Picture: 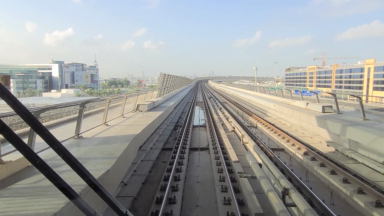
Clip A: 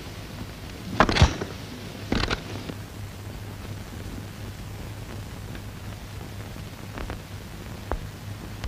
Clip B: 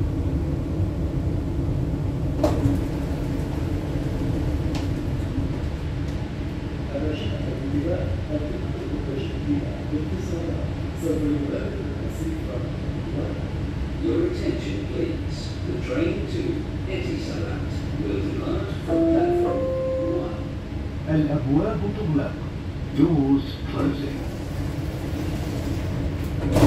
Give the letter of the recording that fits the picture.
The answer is B